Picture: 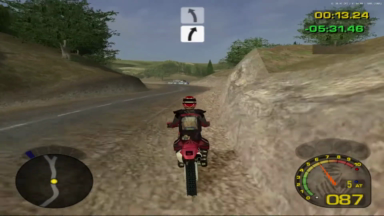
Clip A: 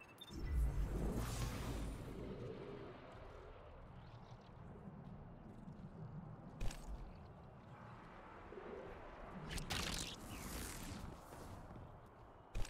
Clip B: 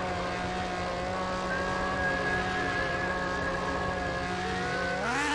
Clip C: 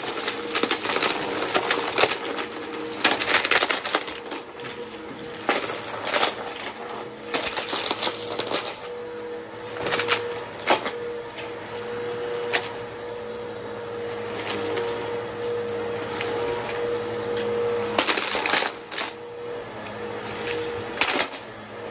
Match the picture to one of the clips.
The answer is B